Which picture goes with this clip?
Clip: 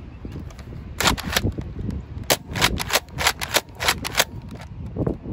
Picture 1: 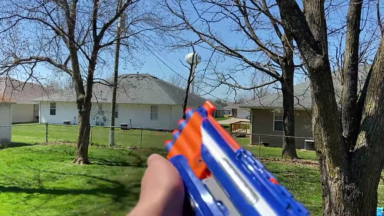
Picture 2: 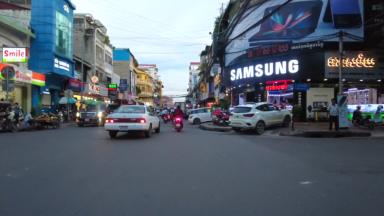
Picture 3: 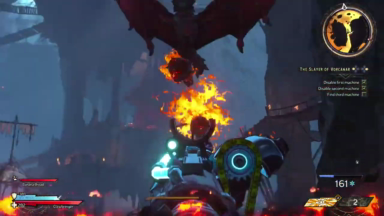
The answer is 1